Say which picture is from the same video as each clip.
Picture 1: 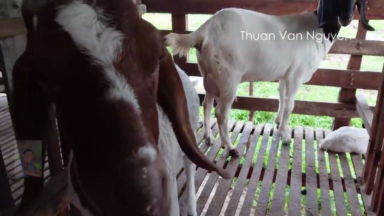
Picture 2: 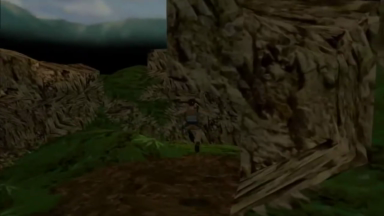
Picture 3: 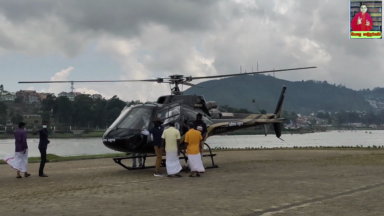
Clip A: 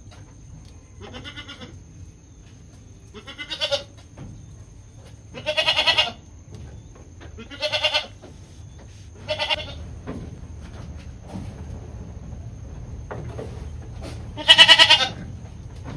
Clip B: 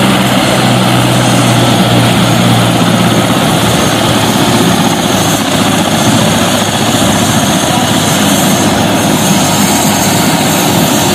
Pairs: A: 1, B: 3